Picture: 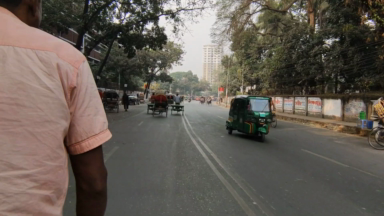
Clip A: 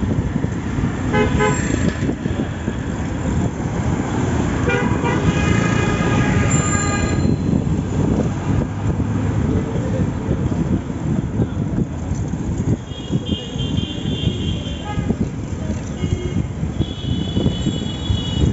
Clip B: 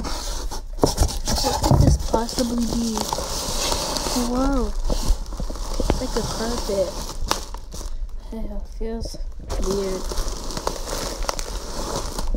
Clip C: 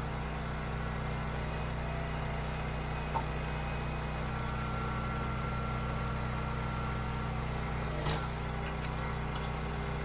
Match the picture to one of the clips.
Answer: A